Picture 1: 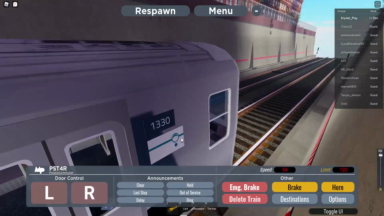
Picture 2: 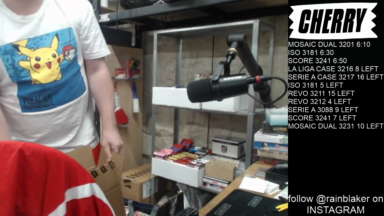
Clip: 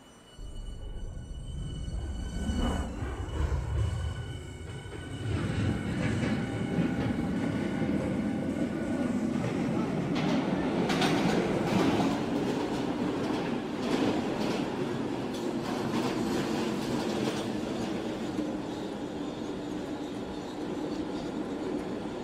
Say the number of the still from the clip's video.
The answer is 1